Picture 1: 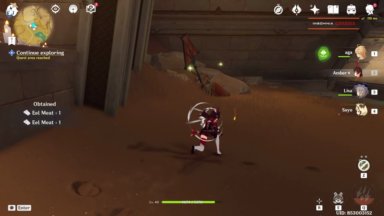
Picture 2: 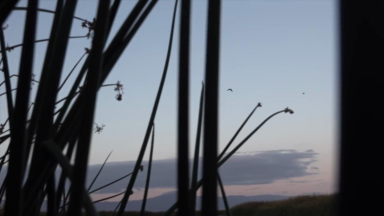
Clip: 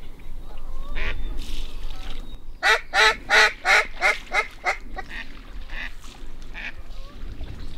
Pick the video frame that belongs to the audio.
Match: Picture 2